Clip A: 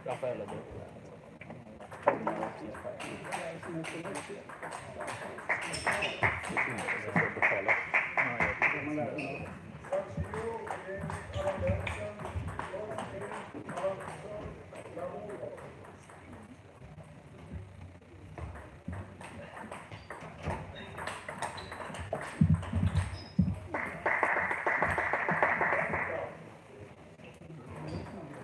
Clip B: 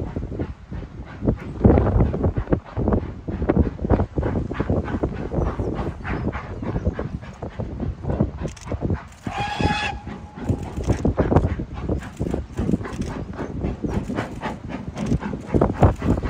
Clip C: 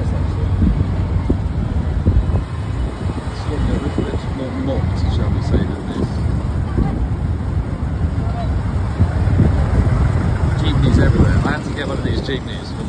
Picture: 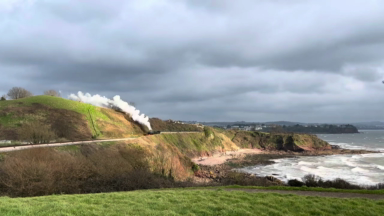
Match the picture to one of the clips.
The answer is B